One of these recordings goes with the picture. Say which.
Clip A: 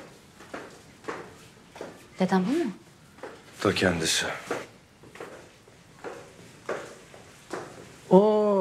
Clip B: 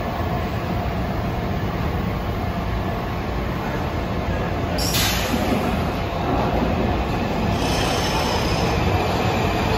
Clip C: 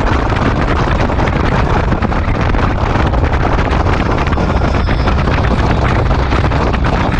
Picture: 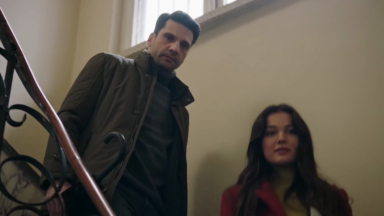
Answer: A